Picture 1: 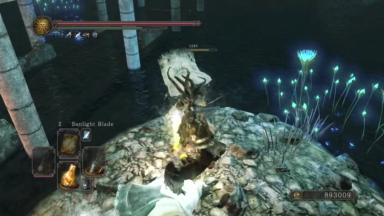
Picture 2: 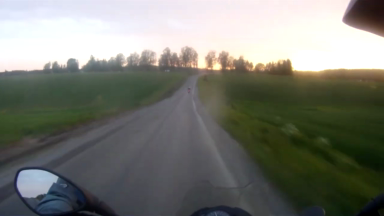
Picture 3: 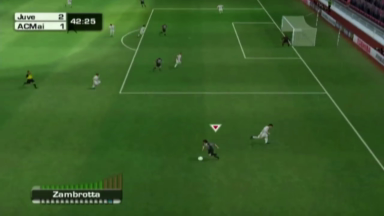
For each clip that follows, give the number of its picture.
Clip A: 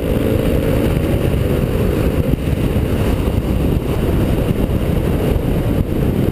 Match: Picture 2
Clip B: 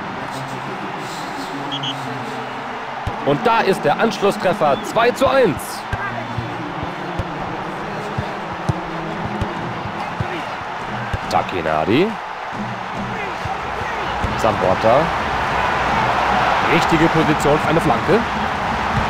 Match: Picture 3